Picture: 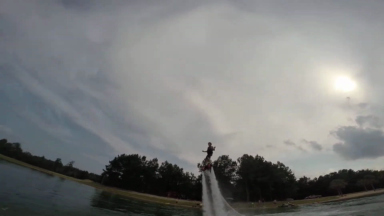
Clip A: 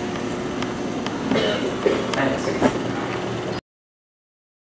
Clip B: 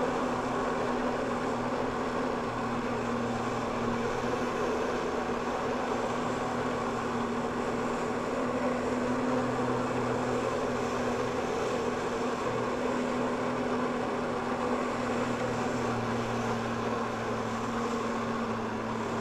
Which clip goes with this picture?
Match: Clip B